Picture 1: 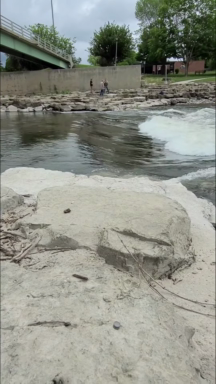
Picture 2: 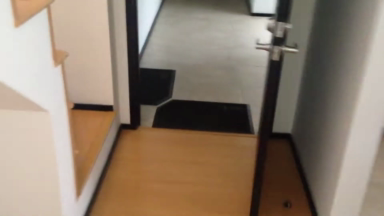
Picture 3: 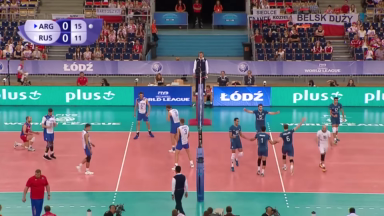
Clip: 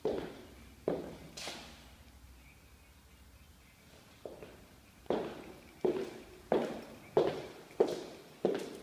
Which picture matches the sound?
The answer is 2